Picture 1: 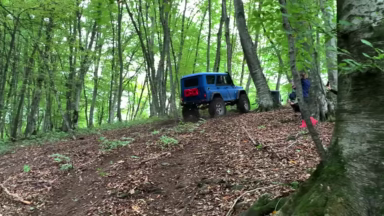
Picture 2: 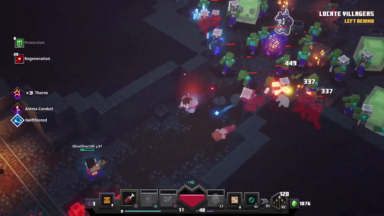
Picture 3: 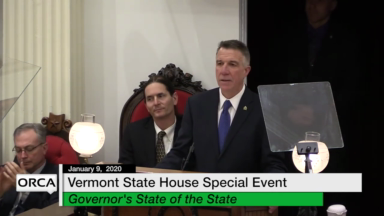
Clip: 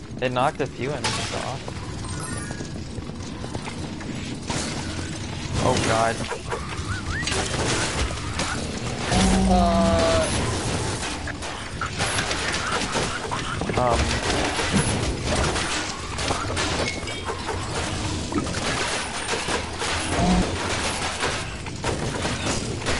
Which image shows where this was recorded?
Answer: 2